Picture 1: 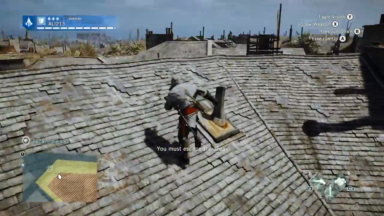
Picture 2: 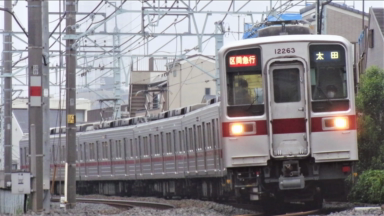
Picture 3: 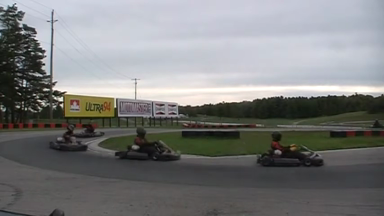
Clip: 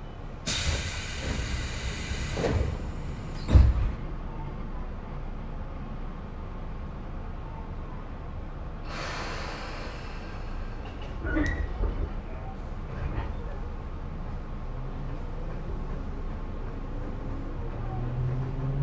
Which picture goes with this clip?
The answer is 2